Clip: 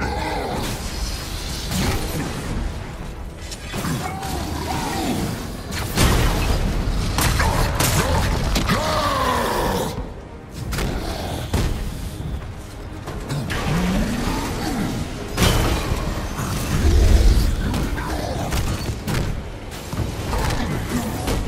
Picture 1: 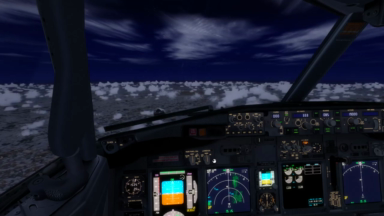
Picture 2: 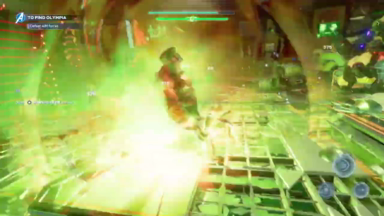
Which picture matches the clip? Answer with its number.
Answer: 2